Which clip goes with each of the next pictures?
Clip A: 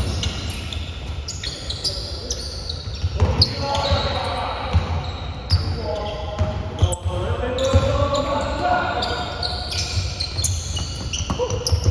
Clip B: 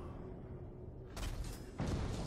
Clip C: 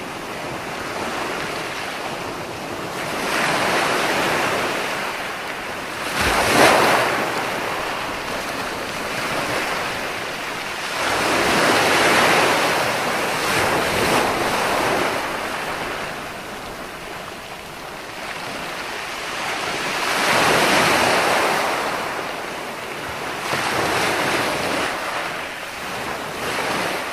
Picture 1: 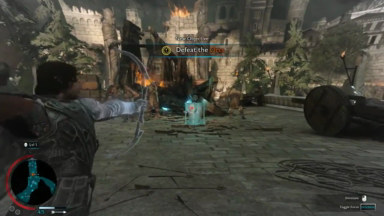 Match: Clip B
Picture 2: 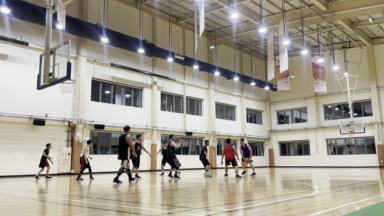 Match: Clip A